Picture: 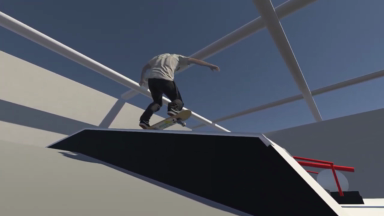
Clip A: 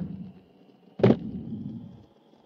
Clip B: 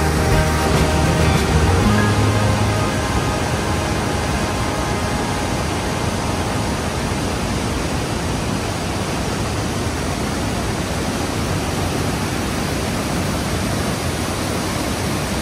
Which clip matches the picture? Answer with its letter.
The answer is A